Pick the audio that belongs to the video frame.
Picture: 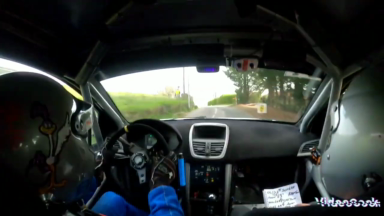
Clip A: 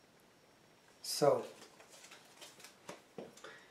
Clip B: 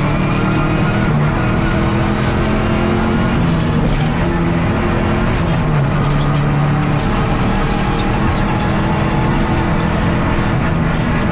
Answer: B